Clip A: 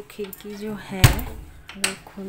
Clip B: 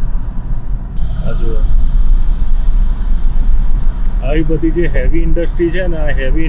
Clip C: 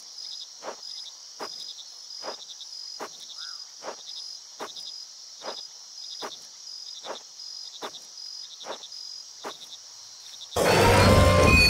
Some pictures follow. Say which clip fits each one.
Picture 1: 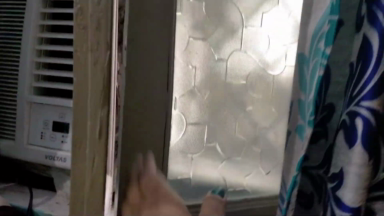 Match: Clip A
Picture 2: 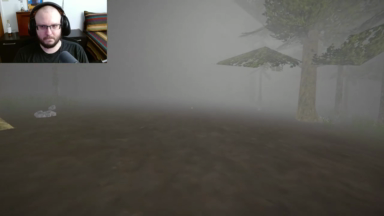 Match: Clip C